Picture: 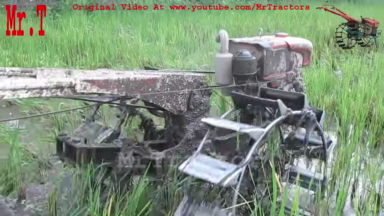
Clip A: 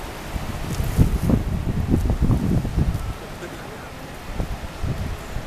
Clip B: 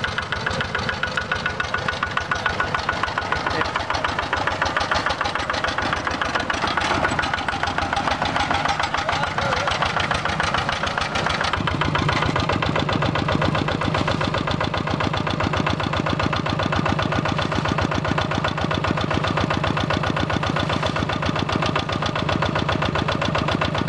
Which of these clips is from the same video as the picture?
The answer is B